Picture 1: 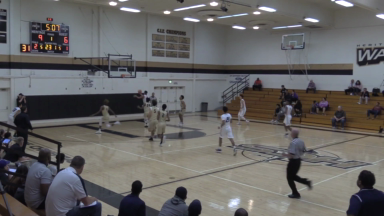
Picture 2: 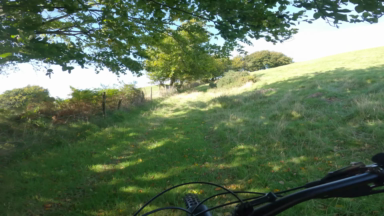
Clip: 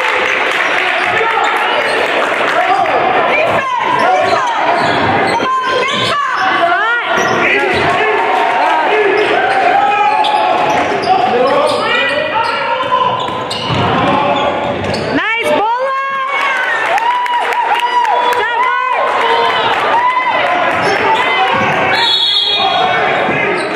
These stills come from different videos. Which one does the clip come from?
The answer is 1